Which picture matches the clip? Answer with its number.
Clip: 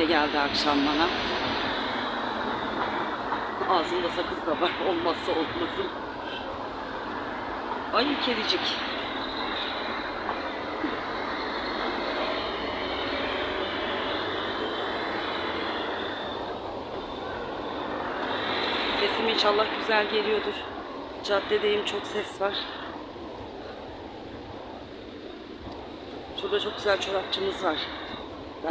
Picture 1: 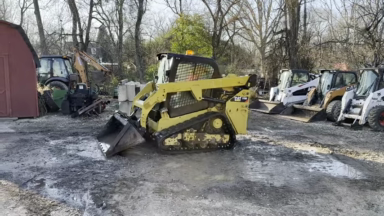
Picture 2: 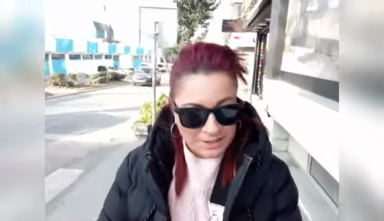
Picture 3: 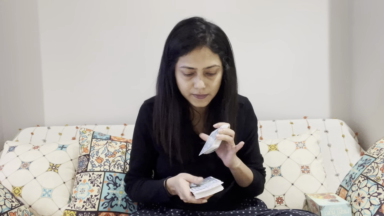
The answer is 2